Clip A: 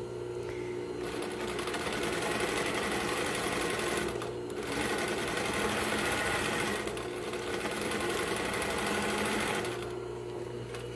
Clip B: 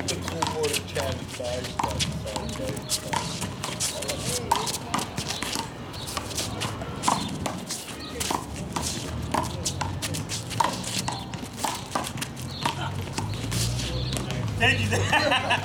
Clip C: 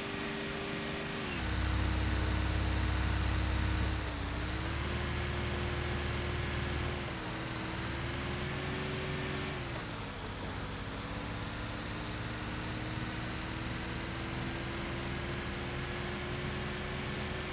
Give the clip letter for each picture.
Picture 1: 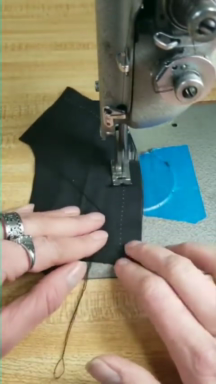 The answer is A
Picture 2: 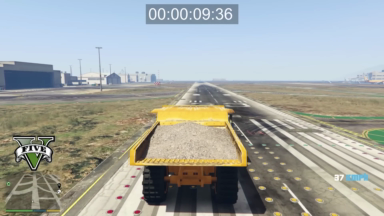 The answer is C